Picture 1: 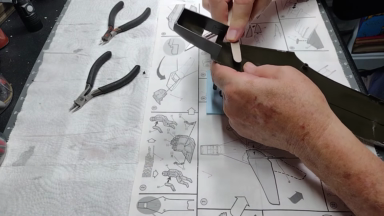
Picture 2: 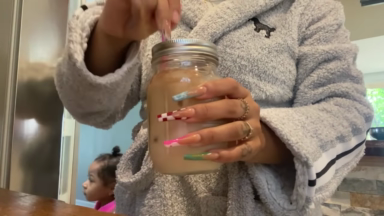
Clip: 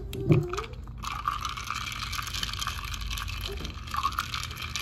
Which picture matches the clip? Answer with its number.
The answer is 2